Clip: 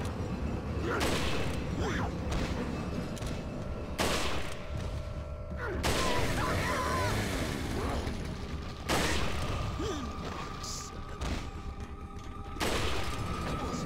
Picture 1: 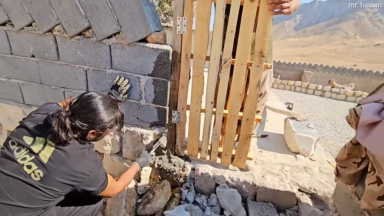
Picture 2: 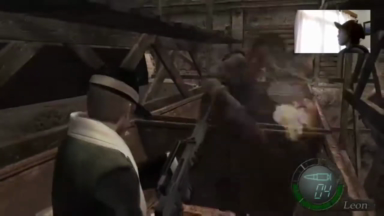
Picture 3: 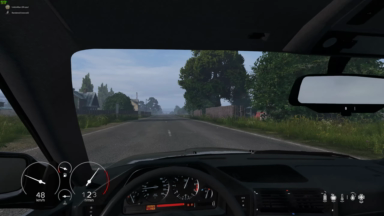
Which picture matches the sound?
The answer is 2